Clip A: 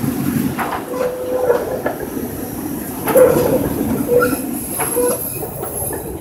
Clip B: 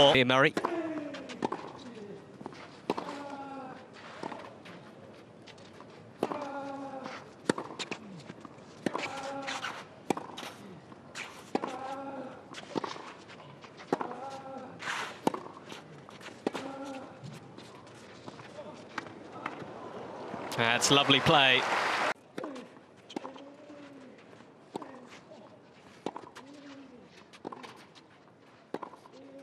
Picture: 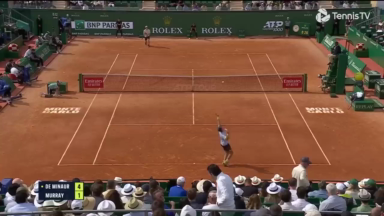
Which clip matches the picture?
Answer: B